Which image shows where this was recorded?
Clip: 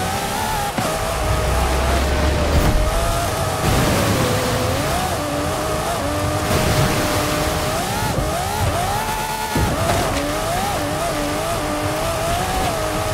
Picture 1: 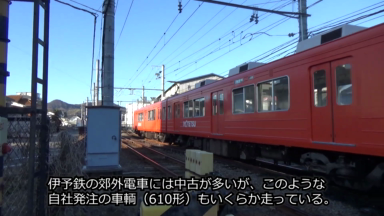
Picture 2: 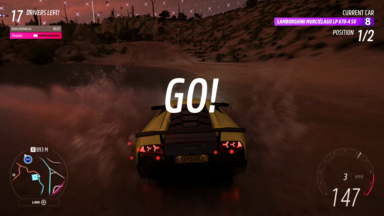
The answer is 2